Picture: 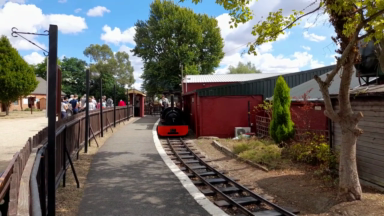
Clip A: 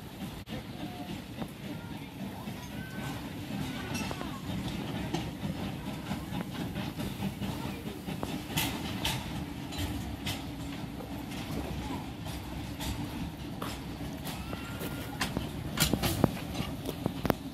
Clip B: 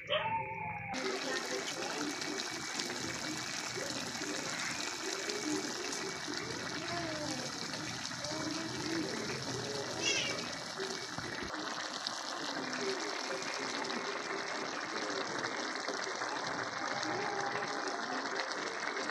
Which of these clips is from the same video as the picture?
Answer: A